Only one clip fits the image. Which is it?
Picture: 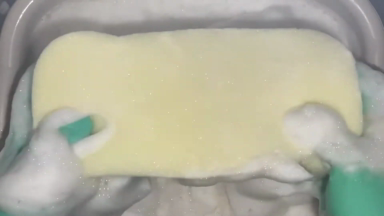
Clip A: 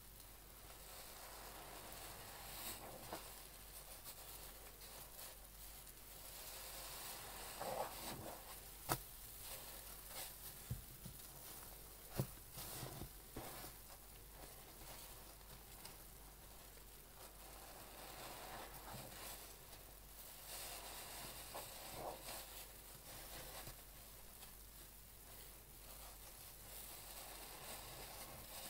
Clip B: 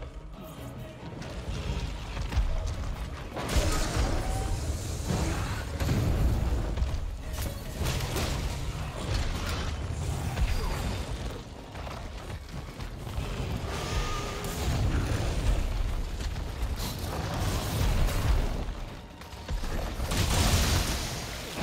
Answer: A